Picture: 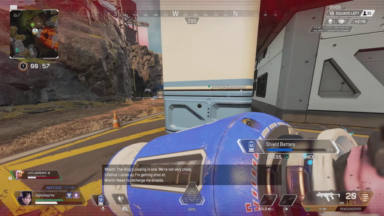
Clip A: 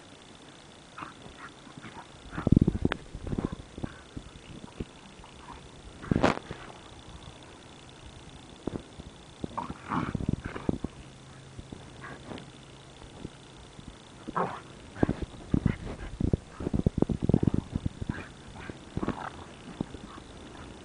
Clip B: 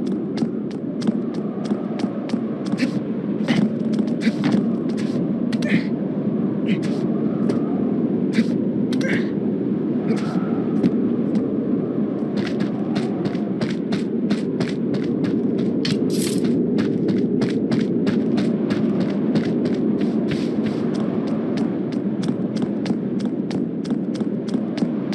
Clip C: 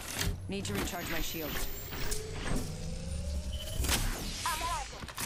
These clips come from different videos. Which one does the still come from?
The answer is C